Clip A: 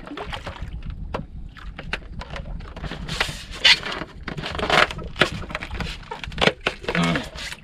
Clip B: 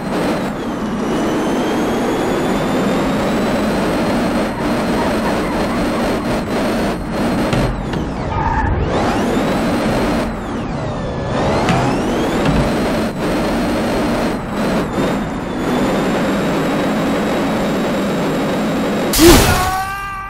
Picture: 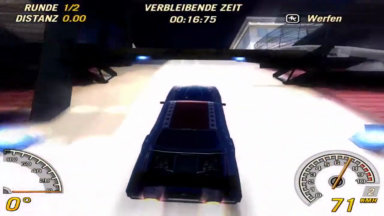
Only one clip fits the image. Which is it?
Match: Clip B